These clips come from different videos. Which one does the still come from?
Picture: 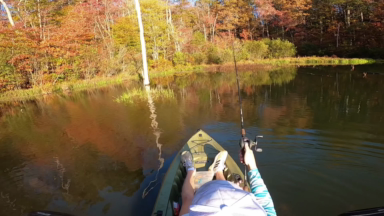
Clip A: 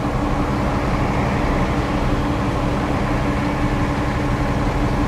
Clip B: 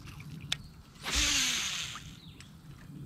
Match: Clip B